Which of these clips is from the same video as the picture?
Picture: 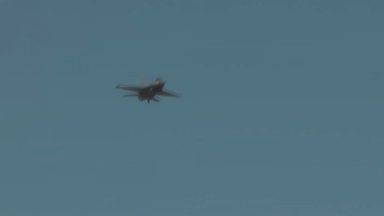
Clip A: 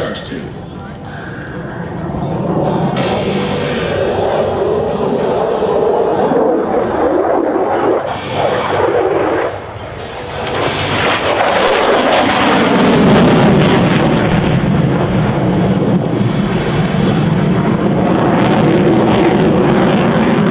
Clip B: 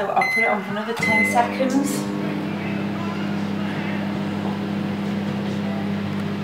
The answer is A